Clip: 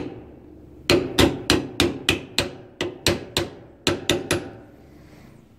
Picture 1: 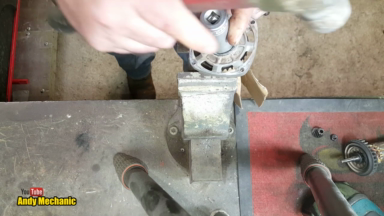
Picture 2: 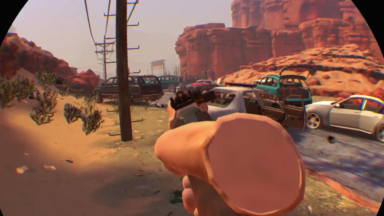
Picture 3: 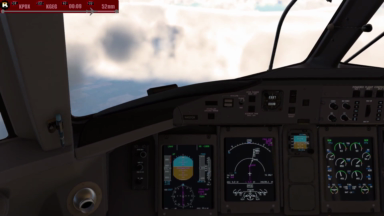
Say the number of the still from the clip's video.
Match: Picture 1